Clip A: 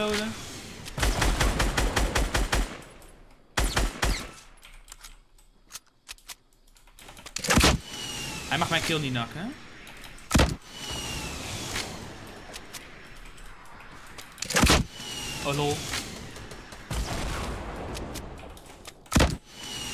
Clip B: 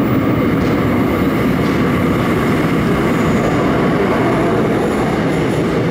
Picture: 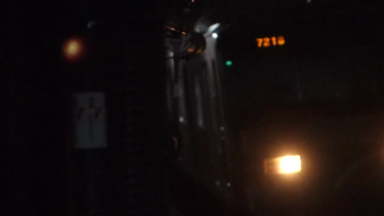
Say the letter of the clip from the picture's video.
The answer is B